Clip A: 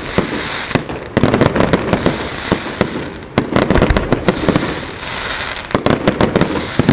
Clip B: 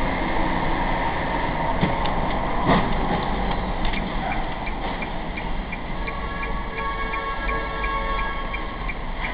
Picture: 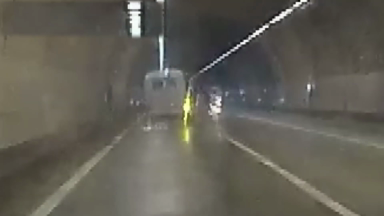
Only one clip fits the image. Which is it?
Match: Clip B